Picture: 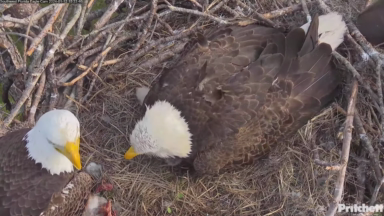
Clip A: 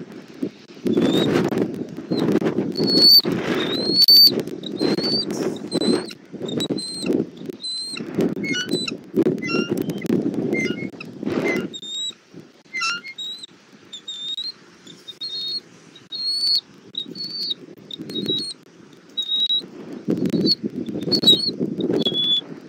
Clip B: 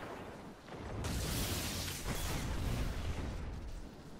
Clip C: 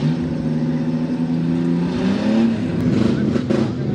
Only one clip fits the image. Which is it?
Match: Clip A